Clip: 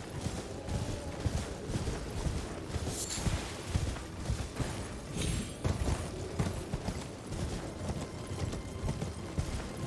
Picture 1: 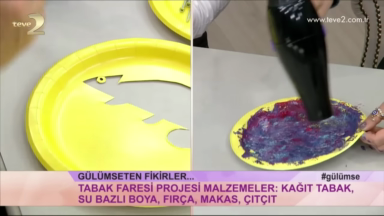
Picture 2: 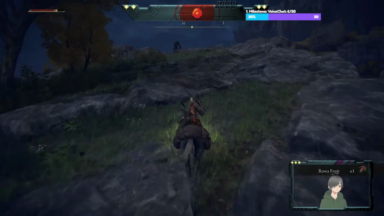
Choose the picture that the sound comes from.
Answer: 2